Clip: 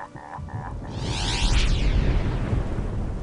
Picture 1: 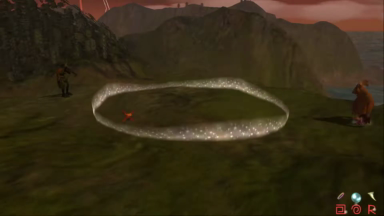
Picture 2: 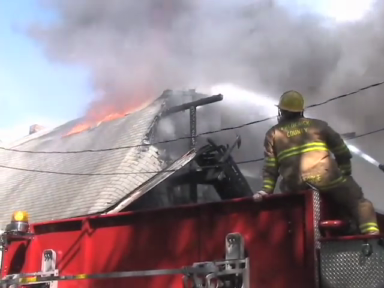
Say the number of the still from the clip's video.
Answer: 1